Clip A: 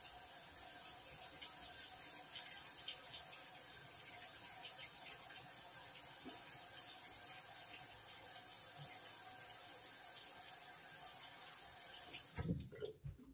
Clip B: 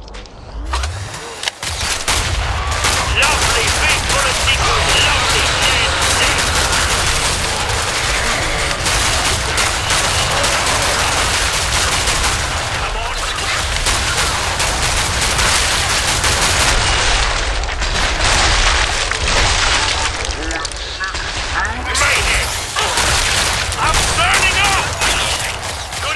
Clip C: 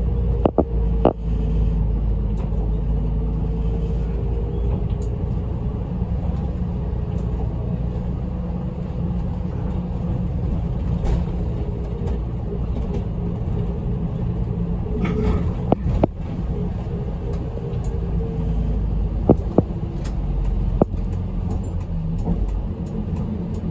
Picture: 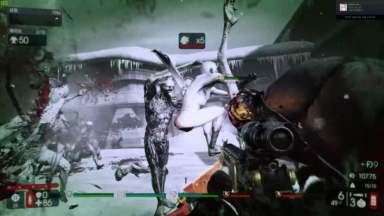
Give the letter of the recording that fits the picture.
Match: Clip B